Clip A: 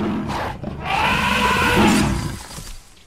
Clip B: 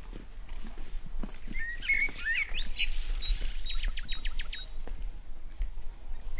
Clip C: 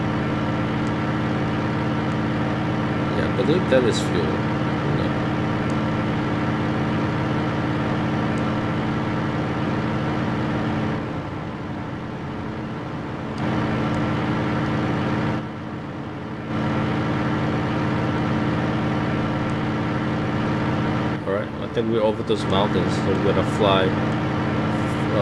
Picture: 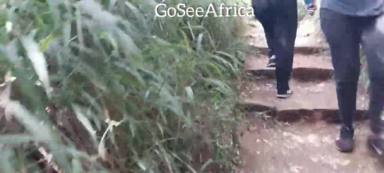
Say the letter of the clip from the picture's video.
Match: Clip B